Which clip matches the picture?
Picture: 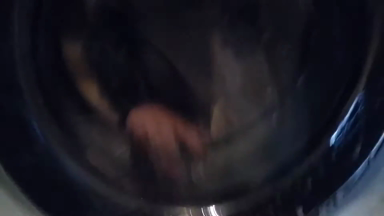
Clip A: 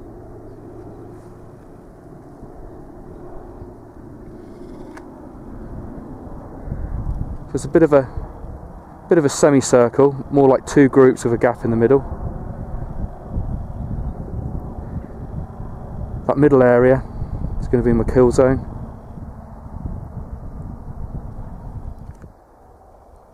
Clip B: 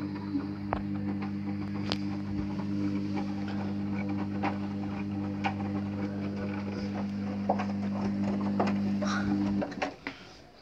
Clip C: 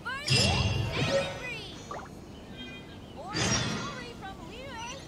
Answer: B